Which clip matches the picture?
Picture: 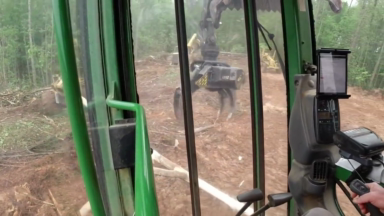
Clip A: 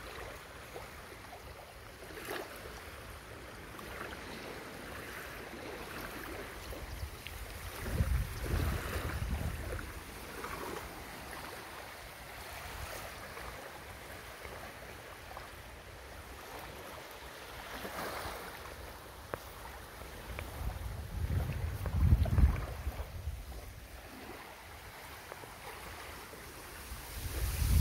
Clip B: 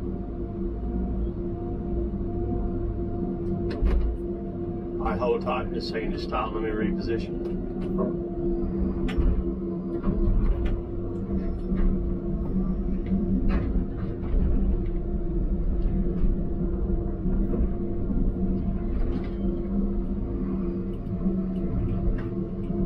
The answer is B